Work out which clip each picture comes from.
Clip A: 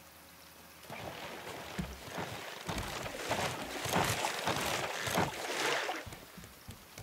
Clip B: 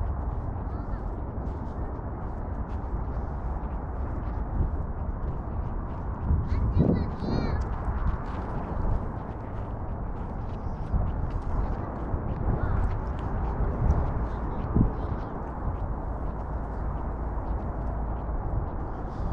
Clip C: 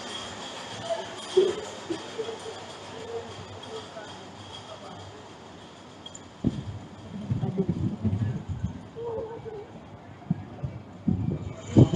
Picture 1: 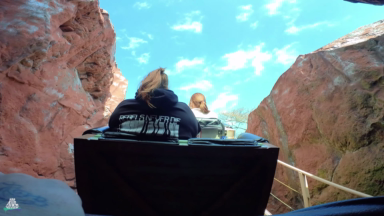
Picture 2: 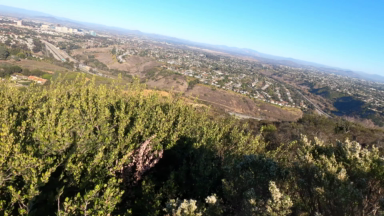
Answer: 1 C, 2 B